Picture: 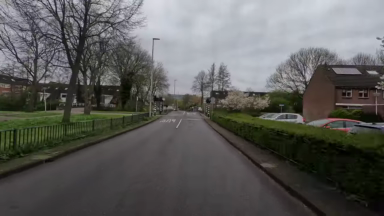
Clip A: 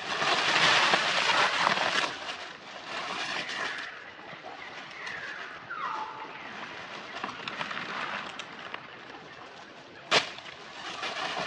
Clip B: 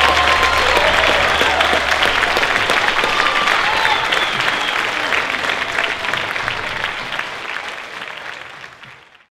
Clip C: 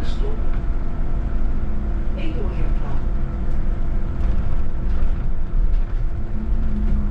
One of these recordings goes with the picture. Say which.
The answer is C